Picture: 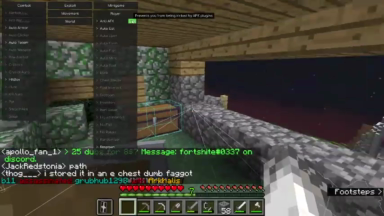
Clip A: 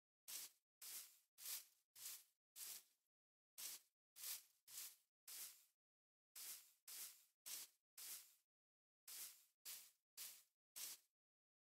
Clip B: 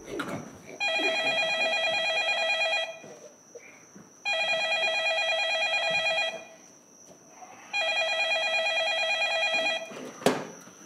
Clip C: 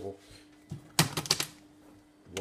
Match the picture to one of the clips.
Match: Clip A